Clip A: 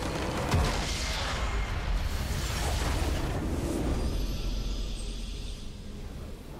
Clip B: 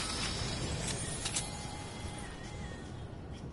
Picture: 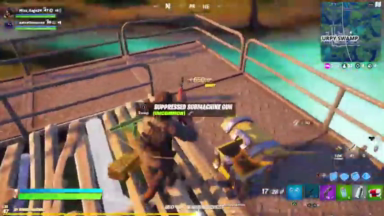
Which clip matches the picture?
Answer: B